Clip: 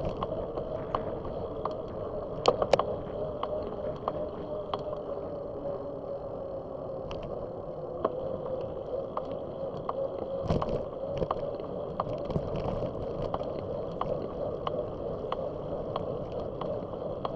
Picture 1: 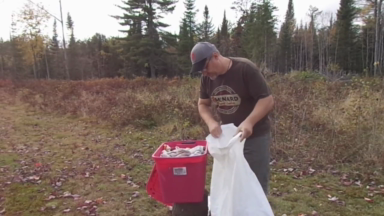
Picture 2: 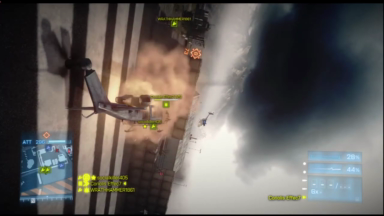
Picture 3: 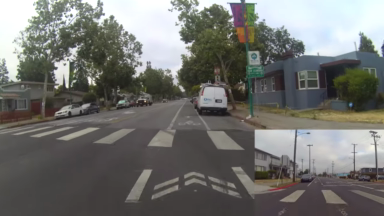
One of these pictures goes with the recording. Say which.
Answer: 3